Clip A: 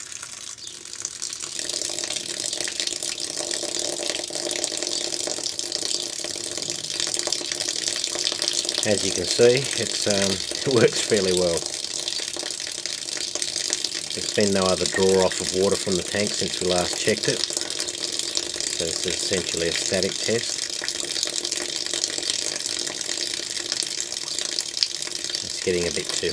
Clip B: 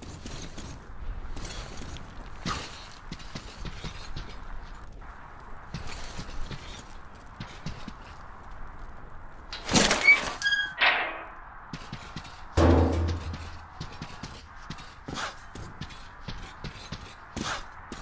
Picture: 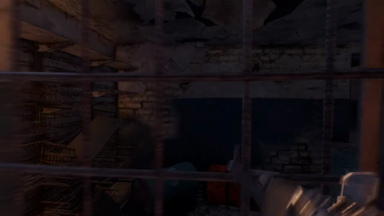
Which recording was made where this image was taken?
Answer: B